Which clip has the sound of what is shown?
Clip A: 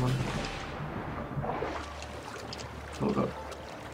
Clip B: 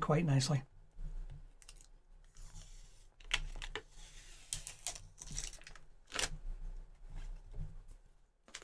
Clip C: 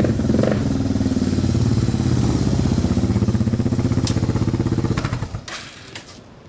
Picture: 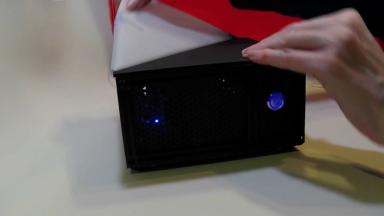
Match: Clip B